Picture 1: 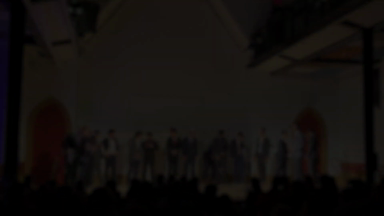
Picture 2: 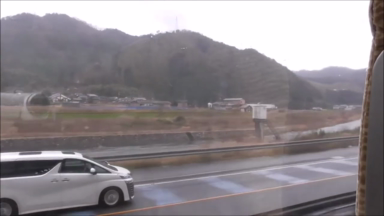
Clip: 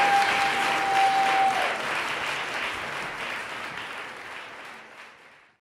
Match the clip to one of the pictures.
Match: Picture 1